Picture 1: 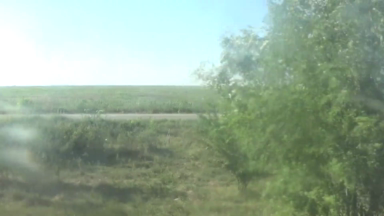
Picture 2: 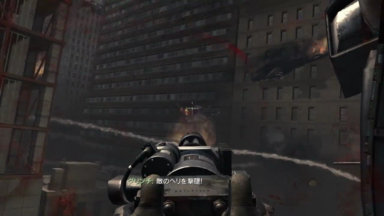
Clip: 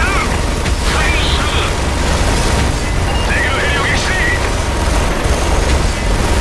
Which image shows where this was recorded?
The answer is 2